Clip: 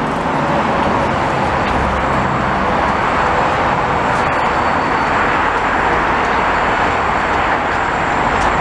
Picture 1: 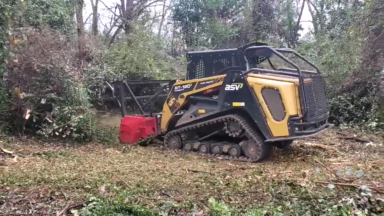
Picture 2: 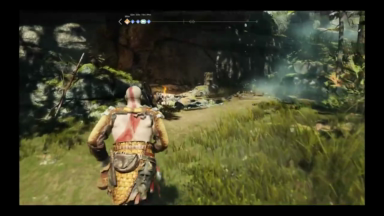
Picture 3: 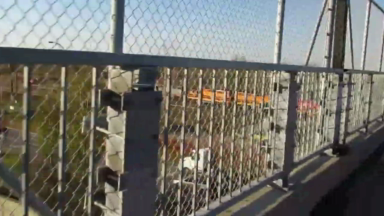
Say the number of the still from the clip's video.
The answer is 3